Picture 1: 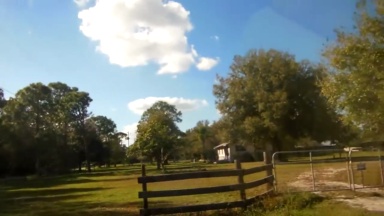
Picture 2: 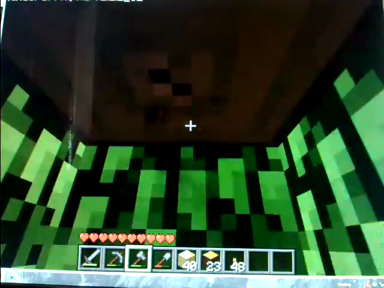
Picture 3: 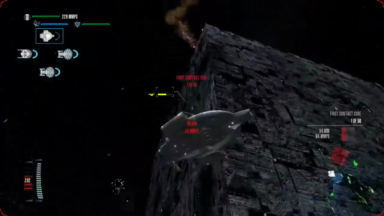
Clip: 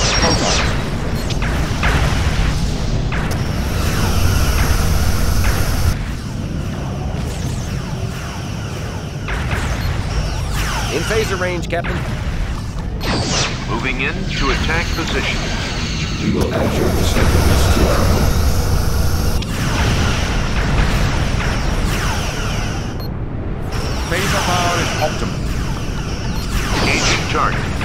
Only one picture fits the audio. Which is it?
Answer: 3